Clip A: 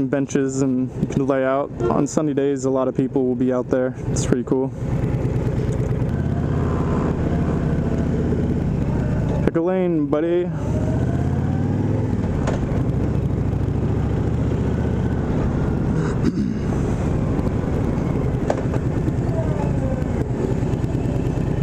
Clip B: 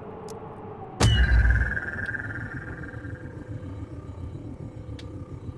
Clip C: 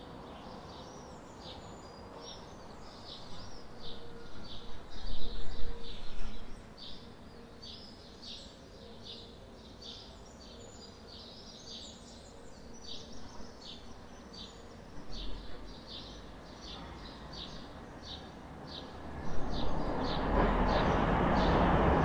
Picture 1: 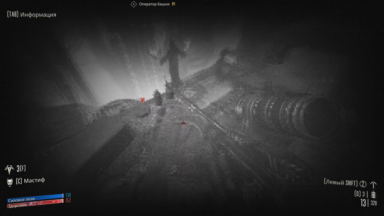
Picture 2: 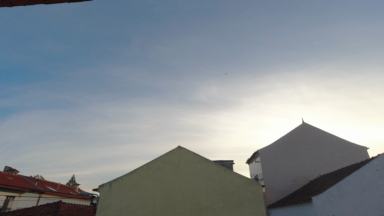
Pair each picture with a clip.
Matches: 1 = B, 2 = C